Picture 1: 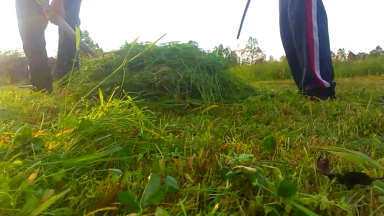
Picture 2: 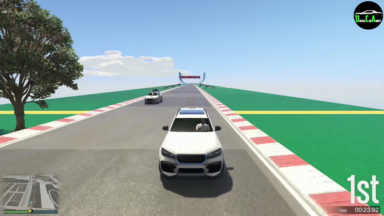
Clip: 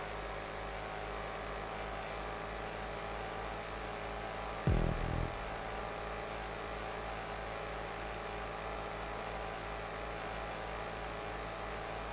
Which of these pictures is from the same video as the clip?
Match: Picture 2